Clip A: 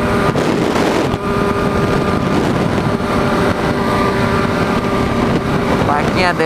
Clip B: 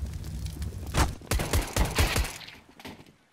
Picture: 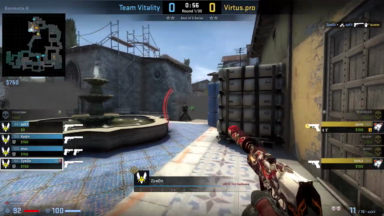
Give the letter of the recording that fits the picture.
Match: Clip B